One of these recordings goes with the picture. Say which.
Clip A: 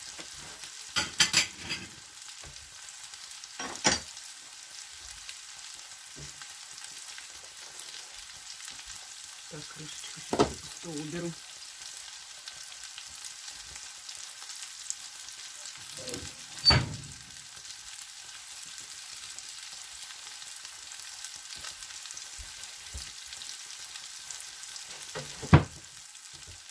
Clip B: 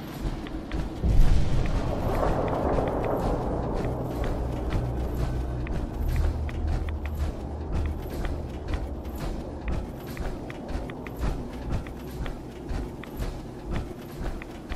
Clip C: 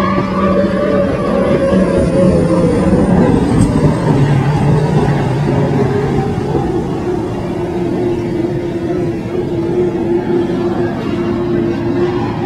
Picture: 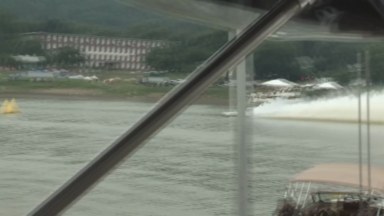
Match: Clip C